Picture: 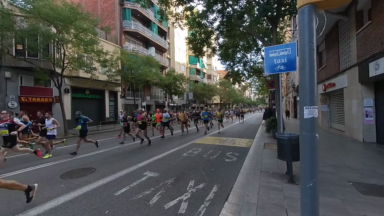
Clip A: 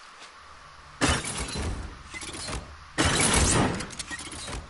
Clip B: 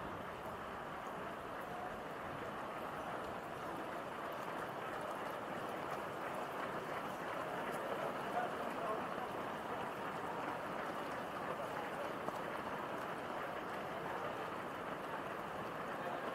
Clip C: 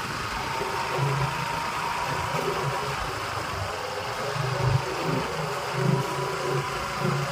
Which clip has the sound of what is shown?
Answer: B